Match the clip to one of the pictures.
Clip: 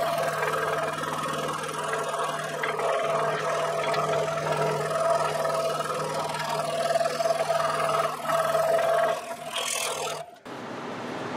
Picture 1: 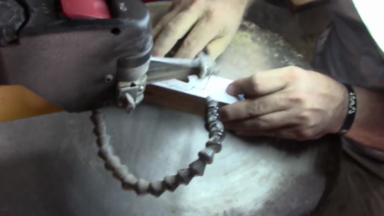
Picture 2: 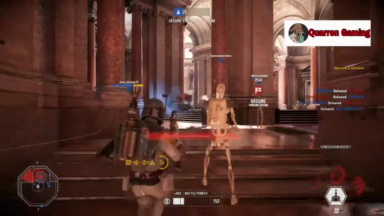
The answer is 1